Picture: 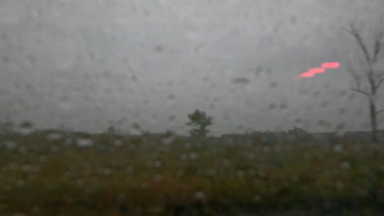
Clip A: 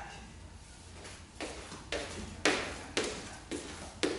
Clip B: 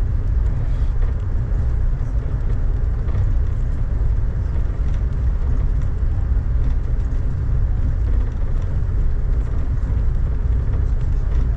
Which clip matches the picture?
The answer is B